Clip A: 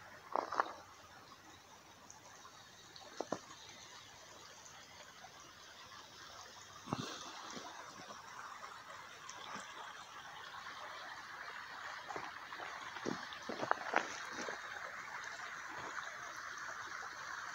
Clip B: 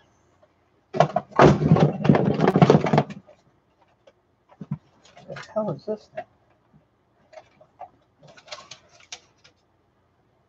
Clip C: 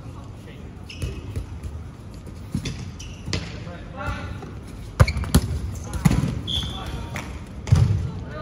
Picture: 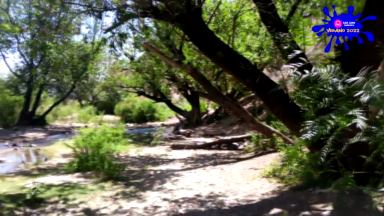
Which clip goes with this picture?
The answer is A